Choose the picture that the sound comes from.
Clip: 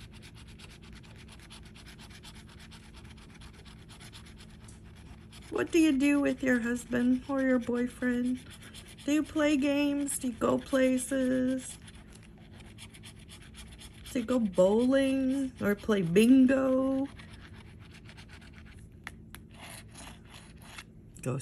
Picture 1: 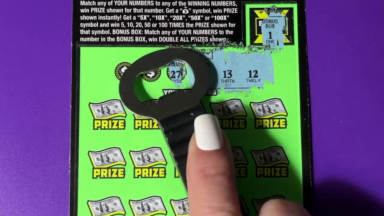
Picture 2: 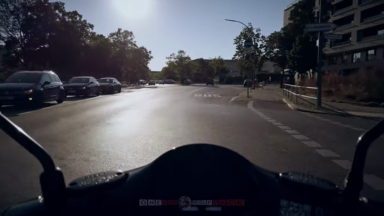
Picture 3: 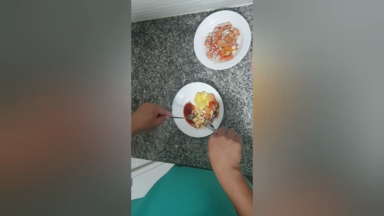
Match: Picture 1